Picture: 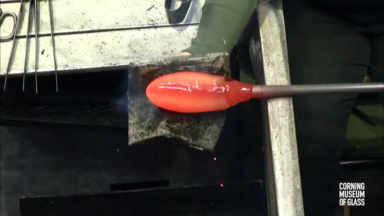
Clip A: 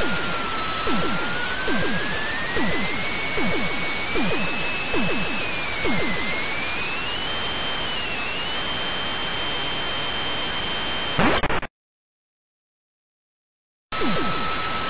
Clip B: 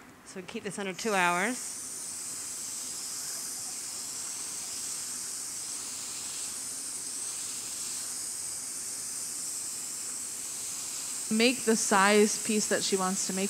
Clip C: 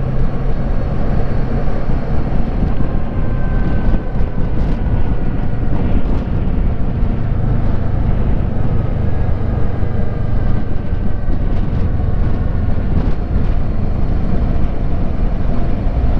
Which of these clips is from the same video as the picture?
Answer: B